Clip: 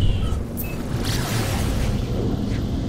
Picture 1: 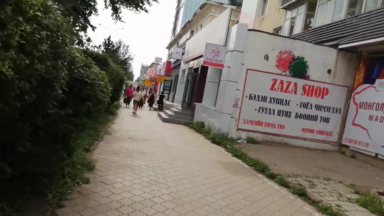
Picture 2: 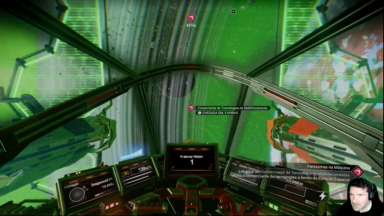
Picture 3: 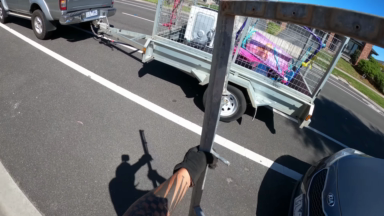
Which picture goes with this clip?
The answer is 2